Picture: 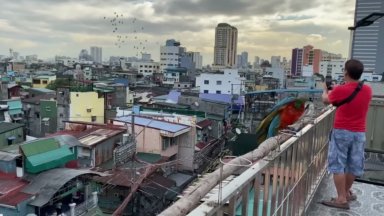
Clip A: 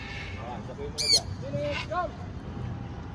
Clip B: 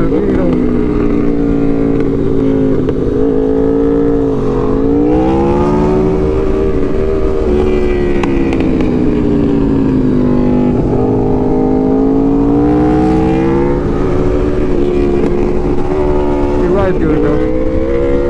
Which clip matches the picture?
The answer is A